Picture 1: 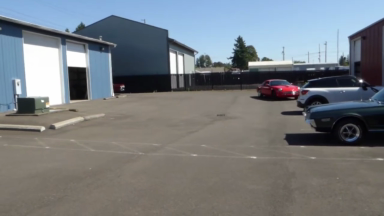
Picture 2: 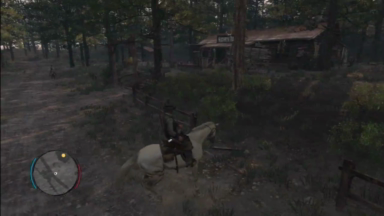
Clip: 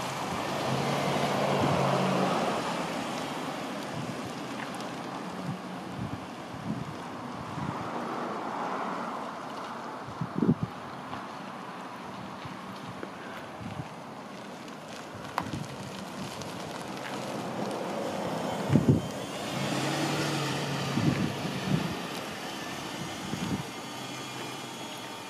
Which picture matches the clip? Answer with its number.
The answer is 1